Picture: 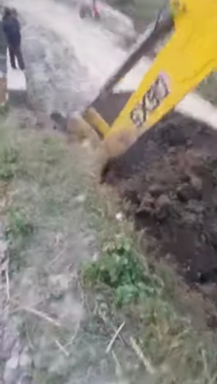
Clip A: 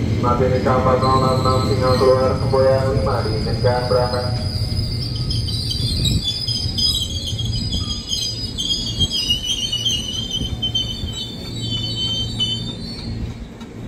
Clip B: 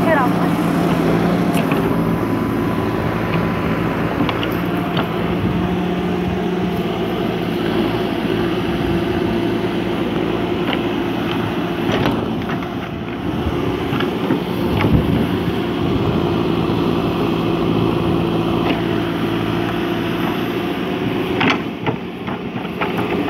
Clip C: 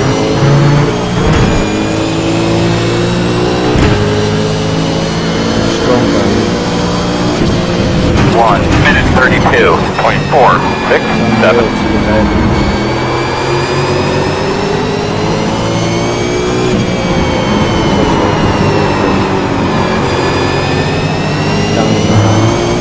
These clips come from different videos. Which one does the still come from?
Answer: B